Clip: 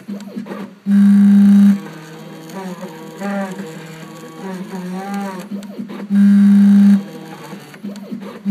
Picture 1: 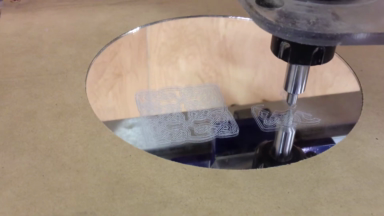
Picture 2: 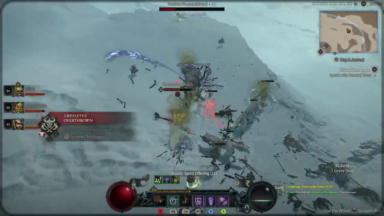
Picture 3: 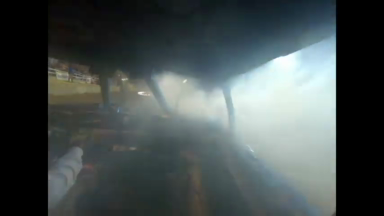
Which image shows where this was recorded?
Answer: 1